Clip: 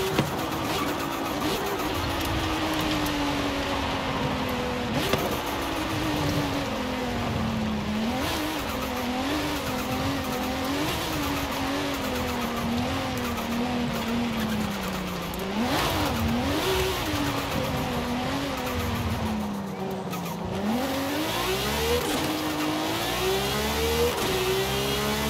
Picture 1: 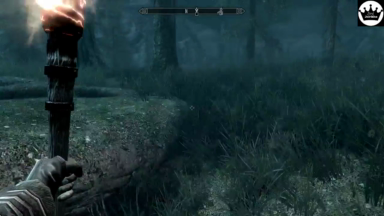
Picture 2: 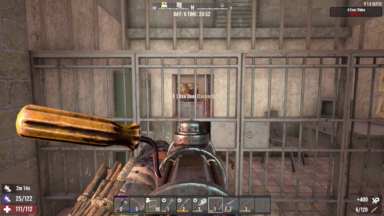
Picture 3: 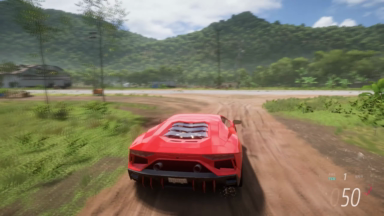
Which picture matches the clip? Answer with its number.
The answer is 3